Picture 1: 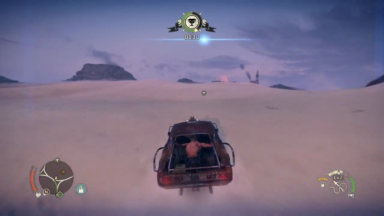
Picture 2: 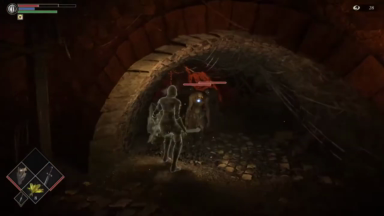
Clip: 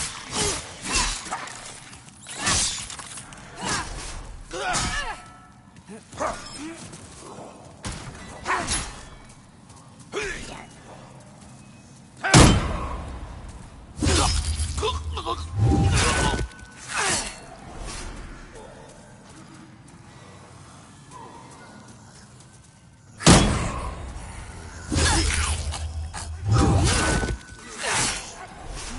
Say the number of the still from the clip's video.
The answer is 2